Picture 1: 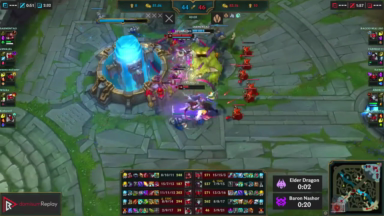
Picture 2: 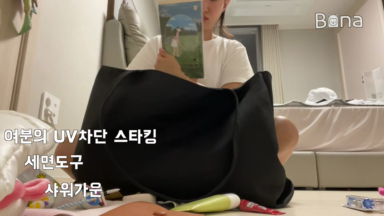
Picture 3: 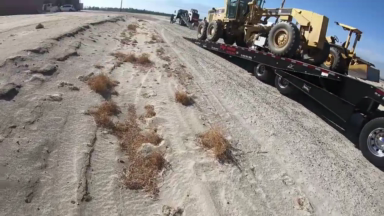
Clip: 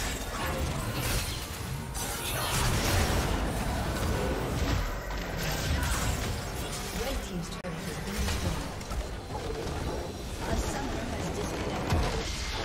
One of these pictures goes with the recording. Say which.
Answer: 1